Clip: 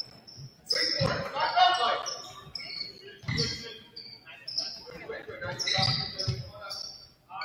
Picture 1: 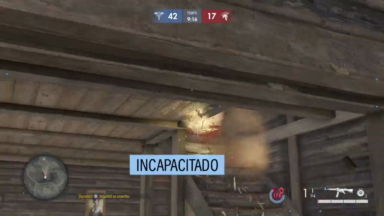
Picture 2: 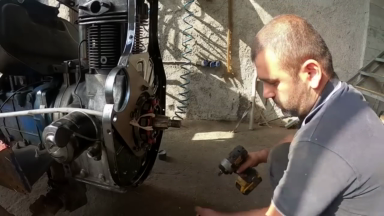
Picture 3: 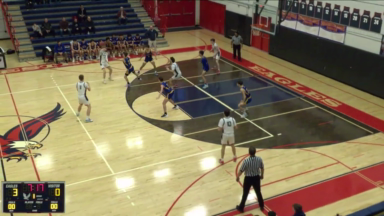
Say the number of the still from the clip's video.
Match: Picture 3